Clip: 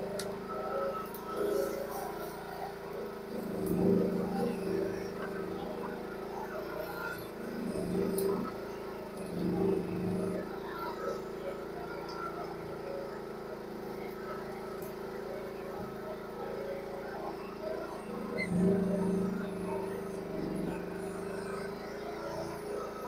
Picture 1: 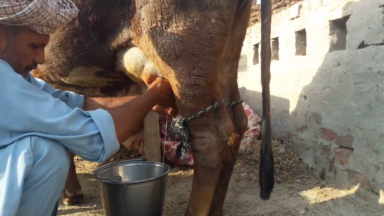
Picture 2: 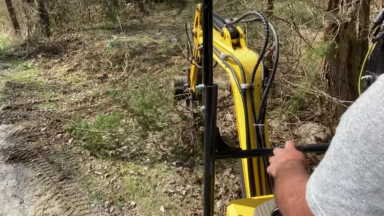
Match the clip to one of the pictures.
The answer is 2